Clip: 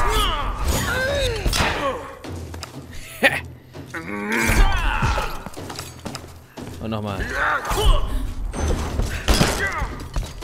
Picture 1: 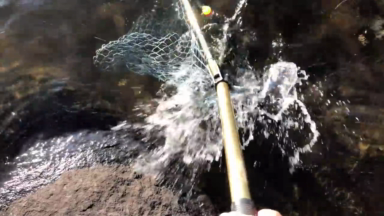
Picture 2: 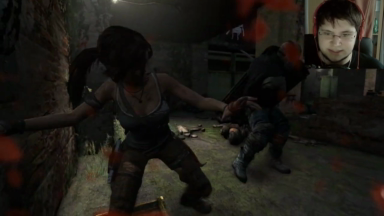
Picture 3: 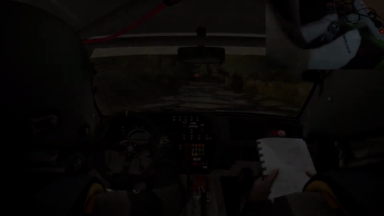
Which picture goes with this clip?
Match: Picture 2